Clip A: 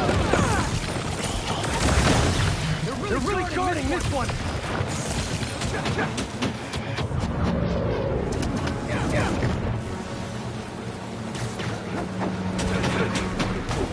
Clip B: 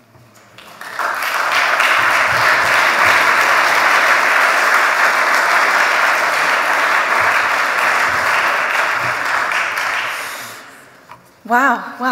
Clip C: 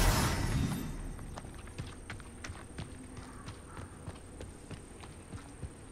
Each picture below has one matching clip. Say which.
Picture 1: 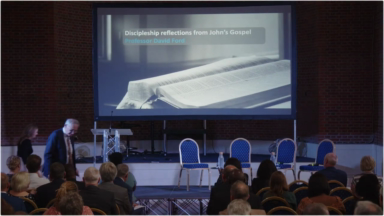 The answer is B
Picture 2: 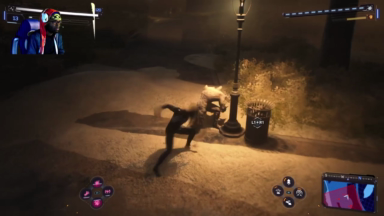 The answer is A